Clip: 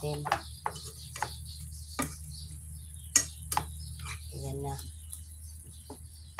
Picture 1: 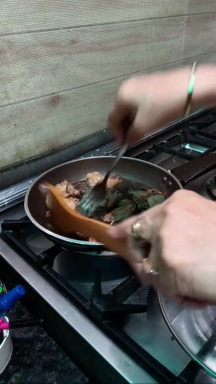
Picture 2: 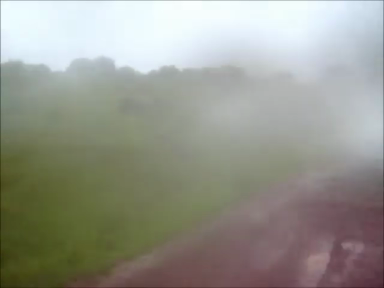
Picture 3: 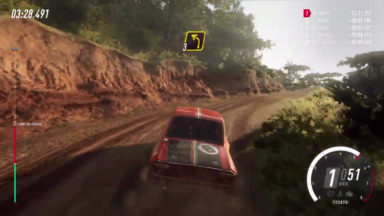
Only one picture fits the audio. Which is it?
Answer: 1